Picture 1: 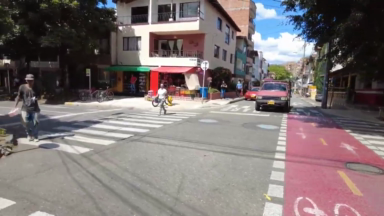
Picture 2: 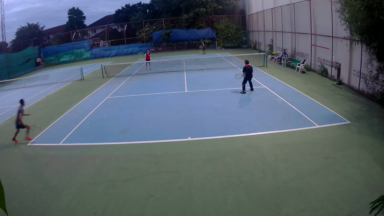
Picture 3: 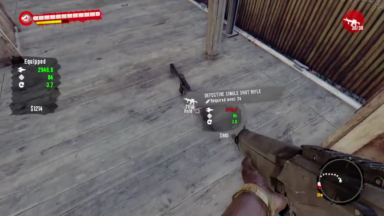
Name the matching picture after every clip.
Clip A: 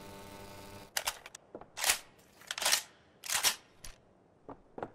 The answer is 3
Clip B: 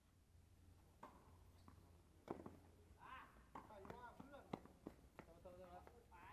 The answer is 2